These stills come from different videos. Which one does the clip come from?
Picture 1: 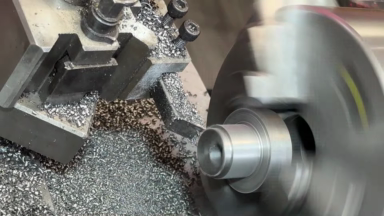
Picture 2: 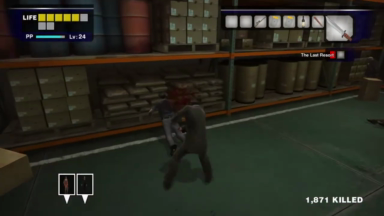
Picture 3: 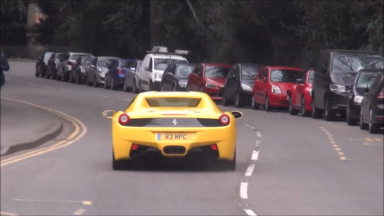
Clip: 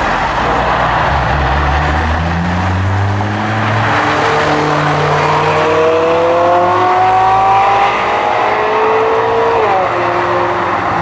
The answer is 3